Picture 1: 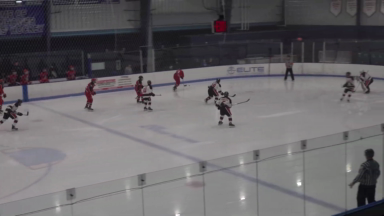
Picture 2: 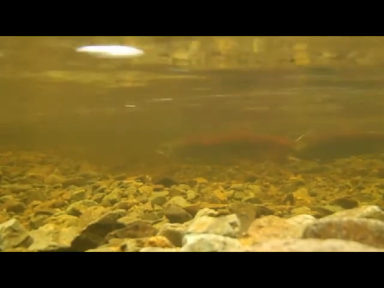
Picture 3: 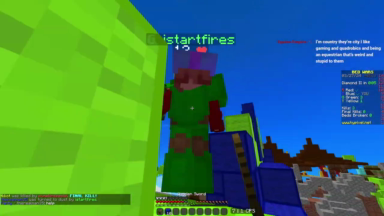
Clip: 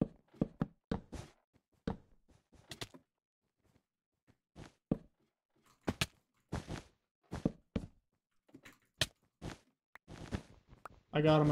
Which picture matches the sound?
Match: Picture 3